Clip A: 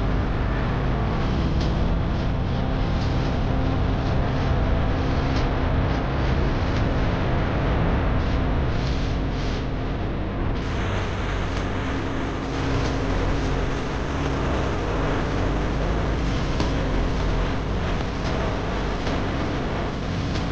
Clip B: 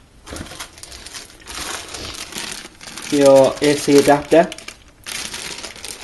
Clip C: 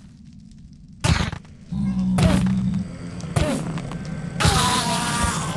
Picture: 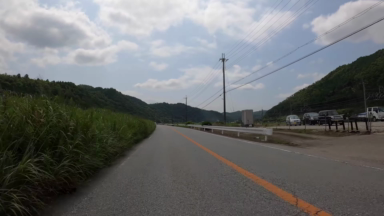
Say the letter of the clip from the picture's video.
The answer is A